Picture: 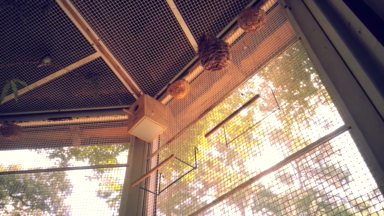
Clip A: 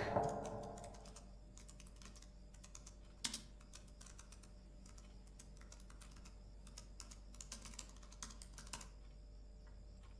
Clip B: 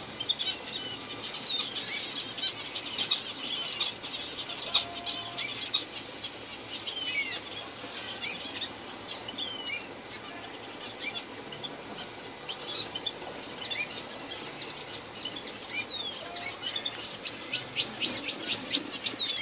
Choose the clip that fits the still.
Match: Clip B